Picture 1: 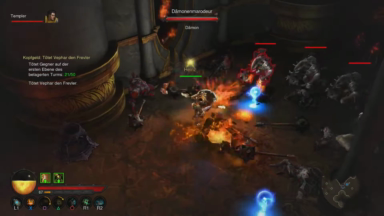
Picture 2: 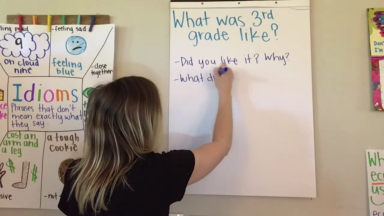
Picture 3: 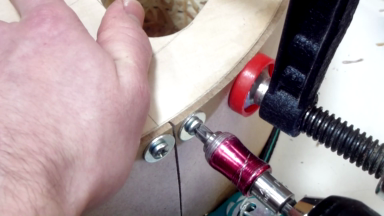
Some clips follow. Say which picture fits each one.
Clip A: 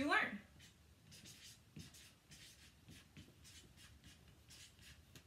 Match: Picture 2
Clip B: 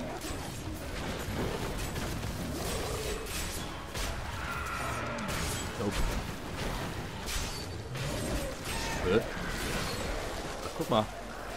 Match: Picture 1